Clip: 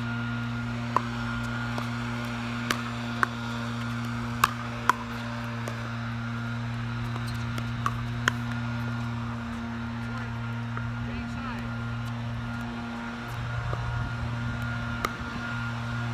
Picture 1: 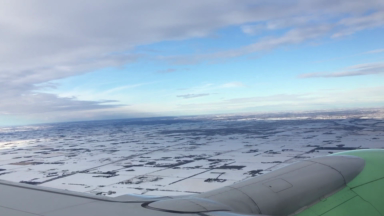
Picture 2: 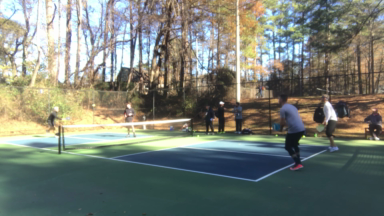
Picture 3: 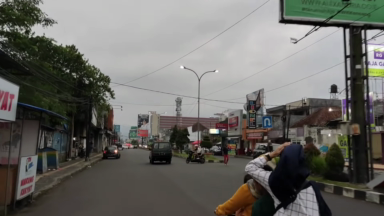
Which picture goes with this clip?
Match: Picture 2